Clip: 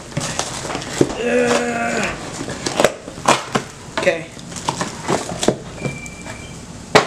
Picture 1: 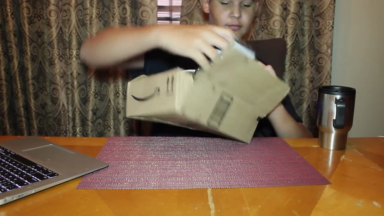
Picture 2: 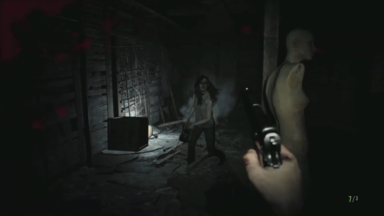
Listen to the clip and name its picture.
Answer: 1